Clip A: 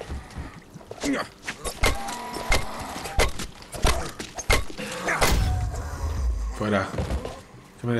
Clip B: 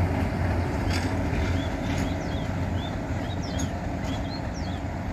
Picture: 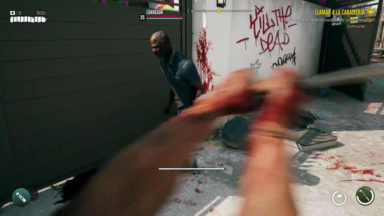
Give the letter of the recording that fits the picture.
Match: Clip A